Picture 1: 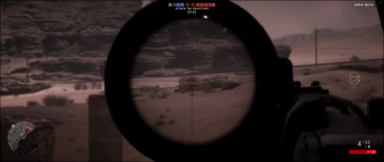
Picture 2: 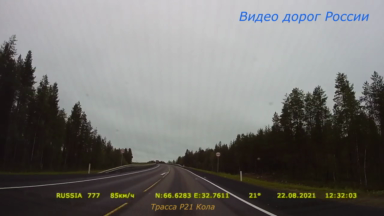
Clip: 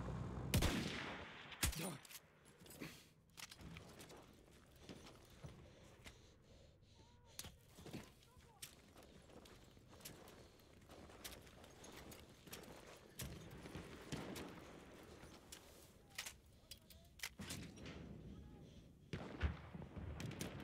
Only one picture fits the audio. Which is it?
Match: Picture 1